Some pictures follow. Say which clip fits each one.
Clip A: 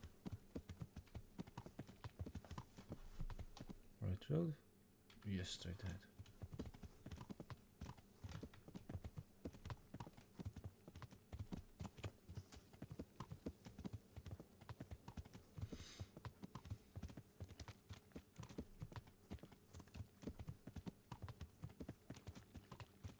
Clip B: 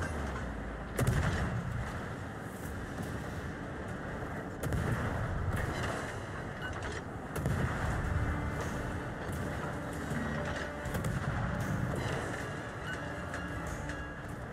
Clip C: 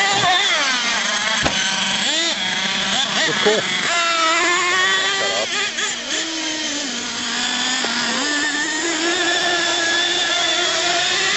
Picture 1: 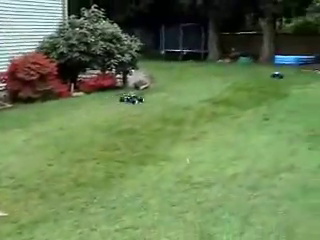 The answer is C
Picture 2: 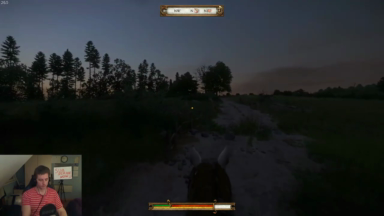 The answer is A